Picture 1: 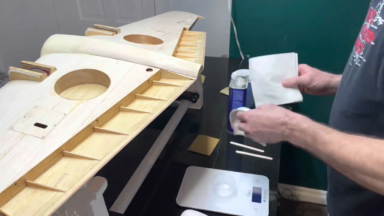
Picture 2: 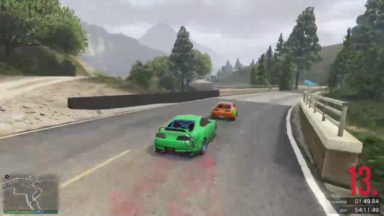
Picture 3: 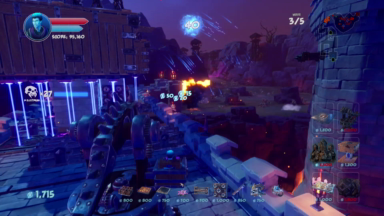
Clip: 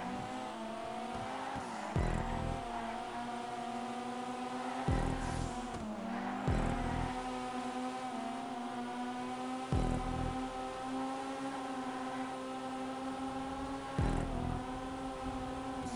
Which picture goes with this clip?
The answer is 2